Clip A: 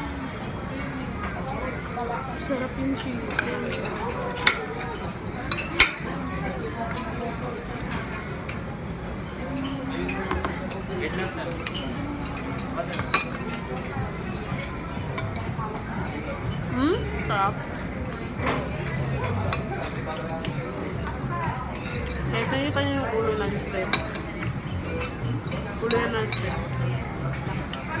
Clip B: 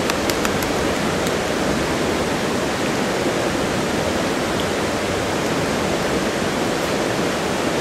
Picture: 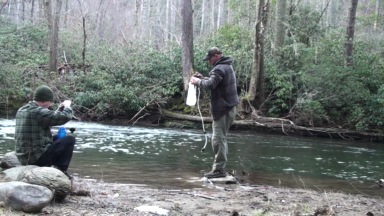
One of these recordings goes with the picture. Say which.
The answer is B